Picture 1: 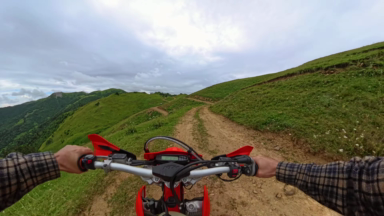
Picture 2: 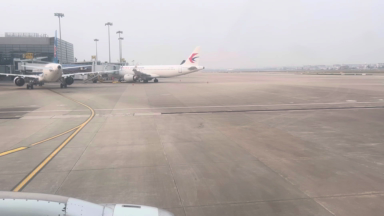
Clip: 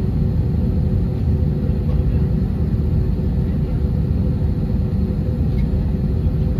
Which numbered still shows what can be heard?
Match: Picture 2